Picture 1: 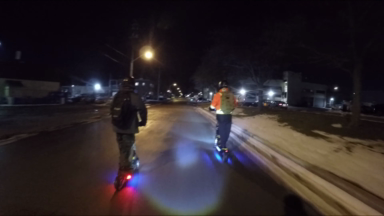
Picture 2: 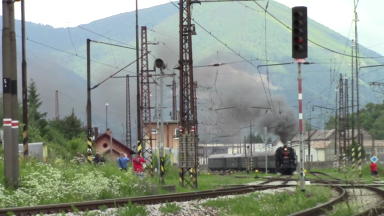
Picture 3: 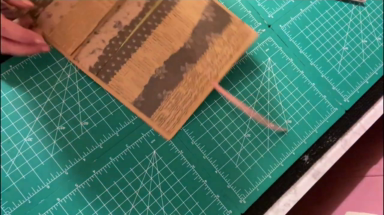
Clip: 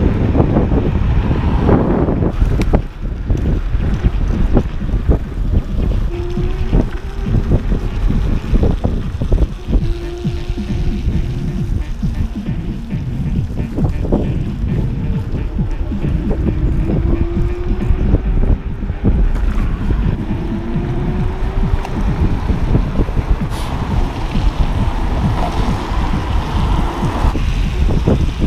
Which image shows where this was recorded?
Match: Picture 1